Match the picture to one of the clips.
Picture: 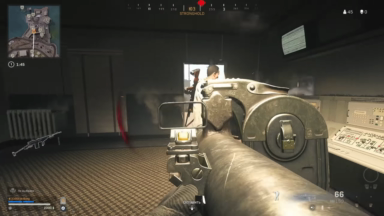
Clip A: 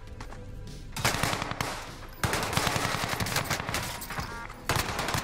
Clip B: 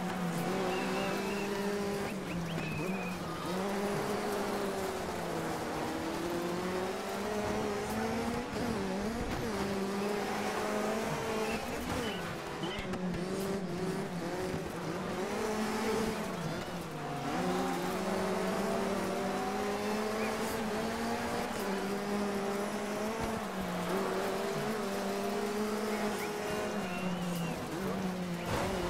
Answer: A